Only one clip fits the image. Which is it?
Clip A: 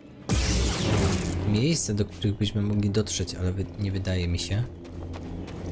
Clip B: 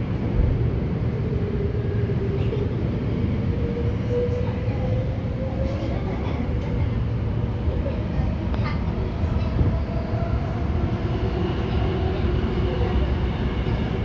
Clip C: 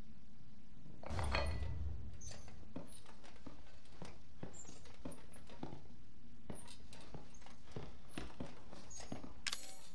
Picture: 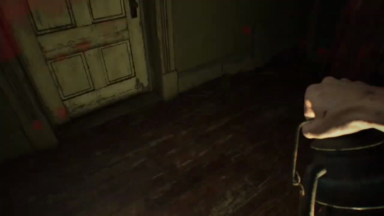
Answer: C